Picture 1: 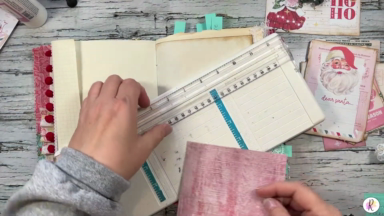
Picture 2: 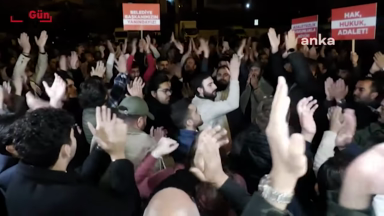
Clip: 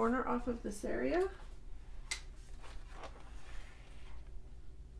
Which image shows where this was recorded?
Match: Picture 1